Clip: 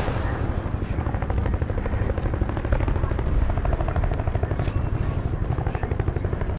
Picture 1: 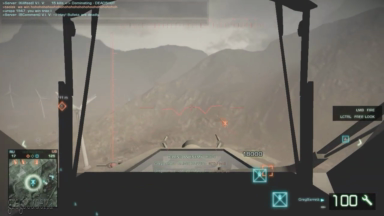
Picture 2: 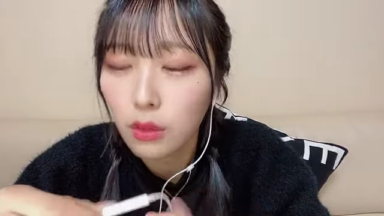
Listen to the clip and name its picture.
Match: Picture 1